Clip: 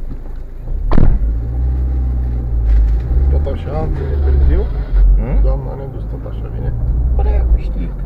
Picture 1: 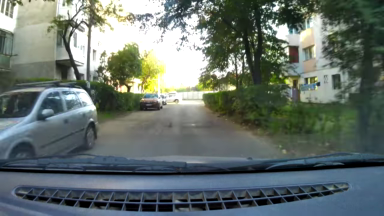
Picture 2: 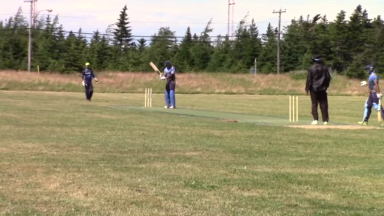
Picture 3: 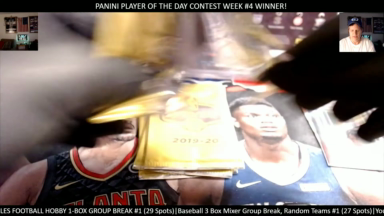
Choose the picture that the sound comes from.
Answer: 1